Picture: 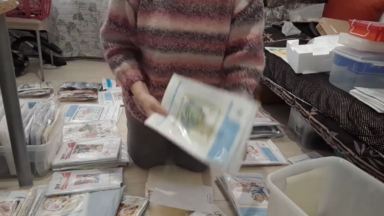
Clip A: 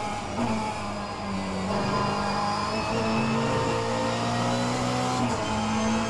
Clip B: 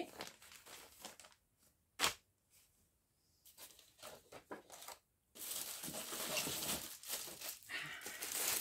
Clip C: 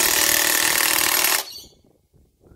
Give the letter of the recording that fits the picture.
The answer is B